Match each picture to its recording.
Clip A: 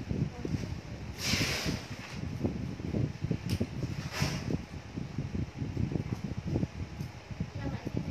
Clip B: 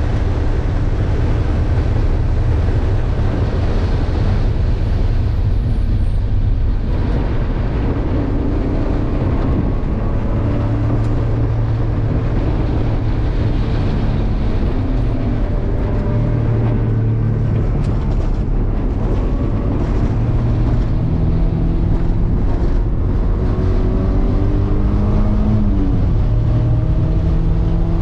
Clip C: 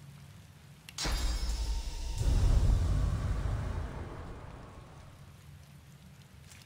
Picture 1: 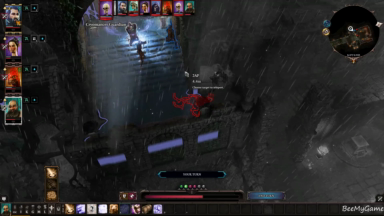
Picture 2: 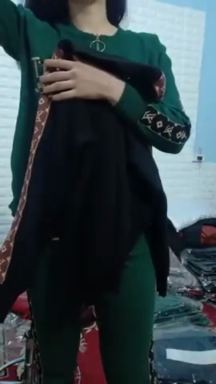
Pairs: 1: C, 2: A